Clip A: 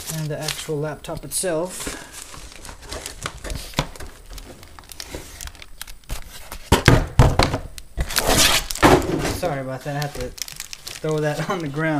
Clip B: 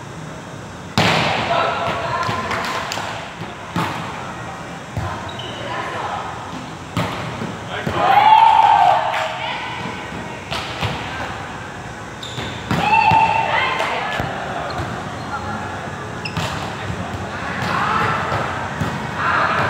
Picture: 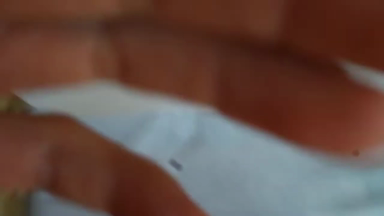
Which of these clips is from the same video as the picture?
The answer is A